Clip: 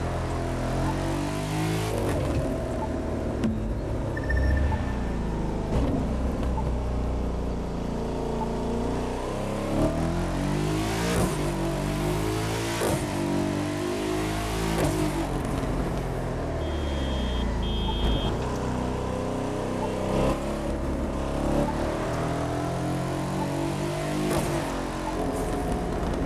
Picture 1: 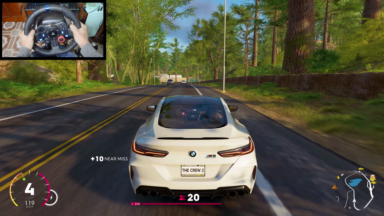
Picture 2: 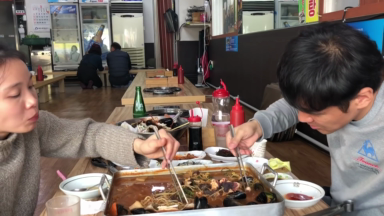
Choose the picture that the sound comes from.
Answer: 1